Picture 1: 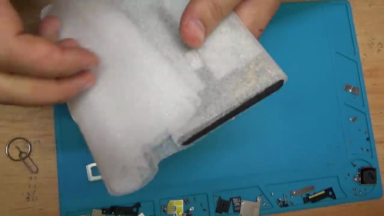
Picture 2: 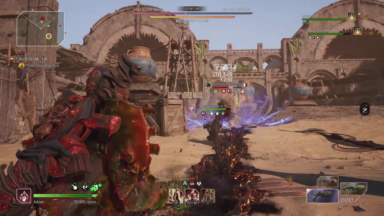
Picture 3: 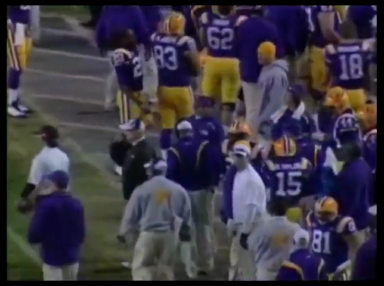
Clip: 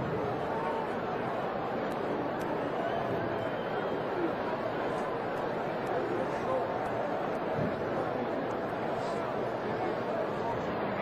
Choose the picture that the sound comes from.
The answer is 3